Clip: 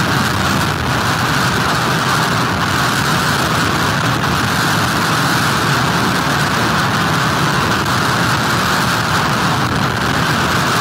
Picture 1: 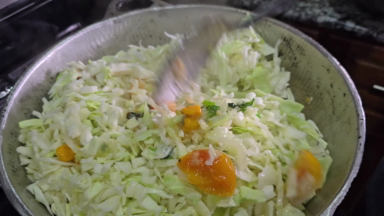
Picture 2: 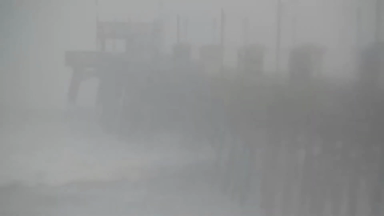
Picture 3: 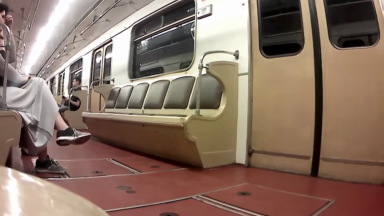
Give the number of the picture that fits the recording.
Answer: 2